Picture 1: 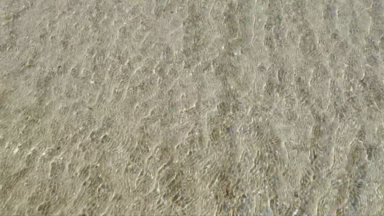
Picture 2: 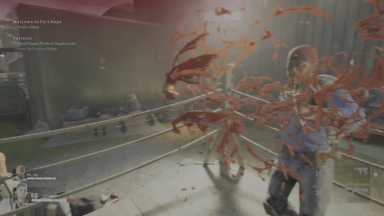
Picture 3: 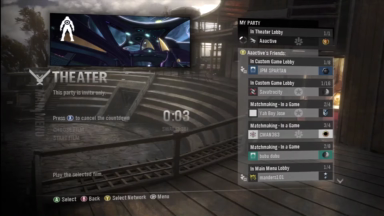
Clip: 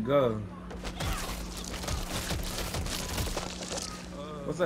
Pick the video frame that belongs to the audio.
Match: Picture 2